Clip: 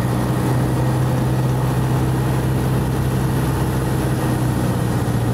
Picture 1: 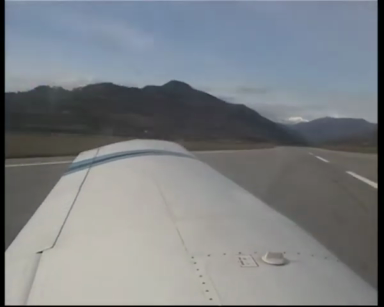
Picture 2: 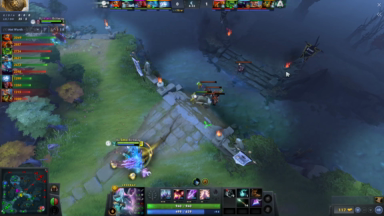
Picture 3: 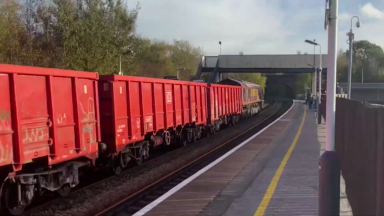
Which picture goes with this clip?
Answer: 1